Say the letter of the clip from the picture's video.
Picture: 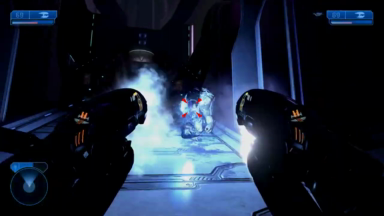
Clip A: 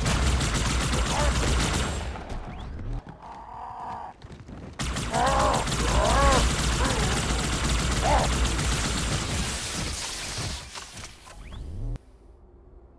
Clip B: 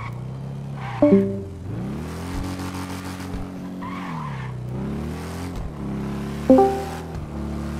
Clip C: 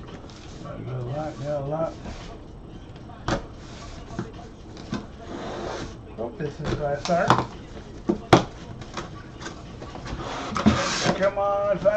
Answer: A